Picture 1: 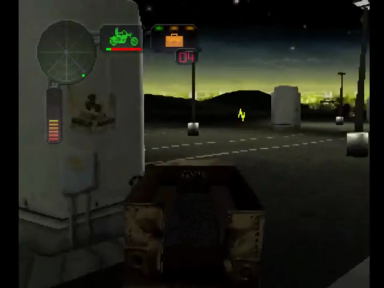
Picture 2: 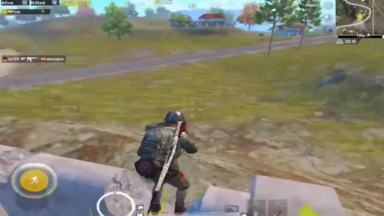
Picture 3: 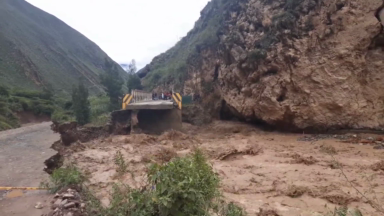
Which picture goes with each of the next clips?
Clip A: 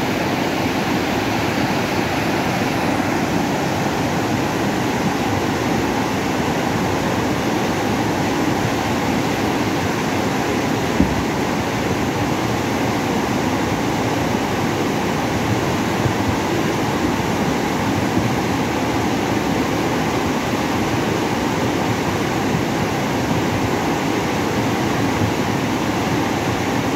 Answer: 3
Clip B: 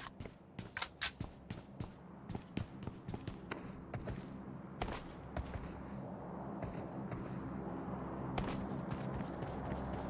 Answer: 2